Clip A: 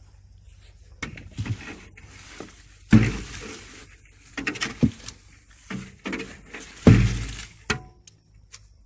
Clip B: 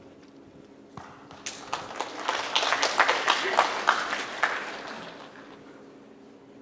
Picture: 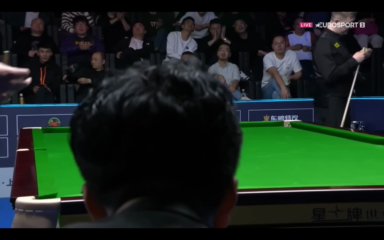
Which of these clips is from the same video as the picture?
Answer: B